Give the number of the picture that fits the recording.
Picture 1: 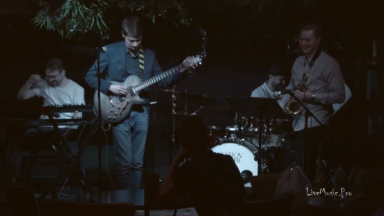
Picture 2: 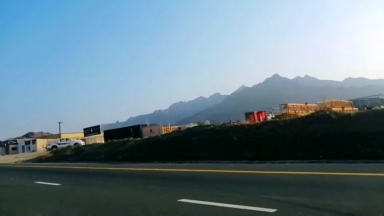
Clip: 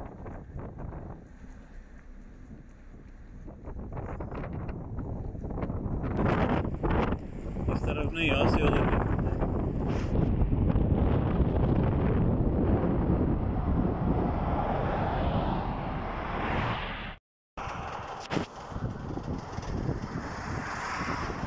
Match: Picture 2